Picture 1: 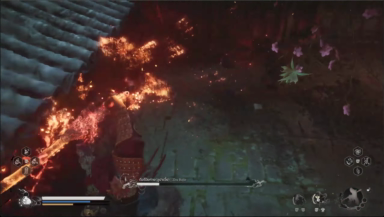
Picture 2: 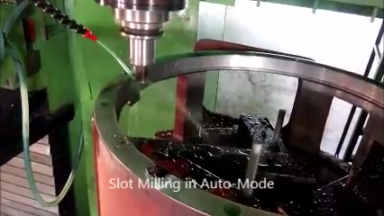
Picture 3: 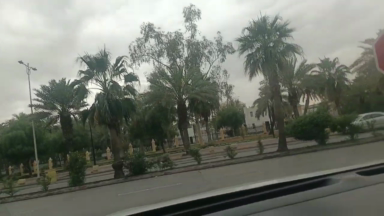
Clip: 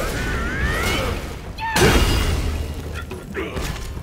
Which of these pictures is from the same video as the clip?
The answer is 1